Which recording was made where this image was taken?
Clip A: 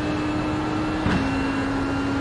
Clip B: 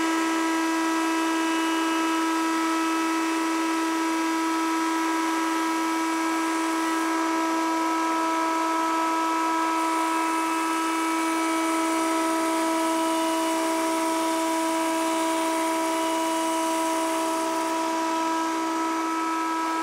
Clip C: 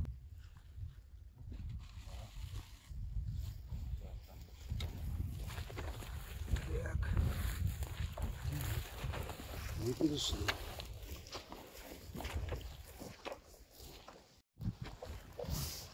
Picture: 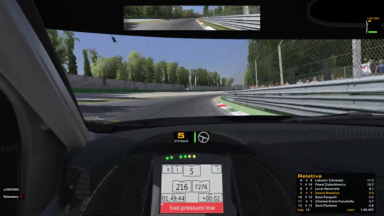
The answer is A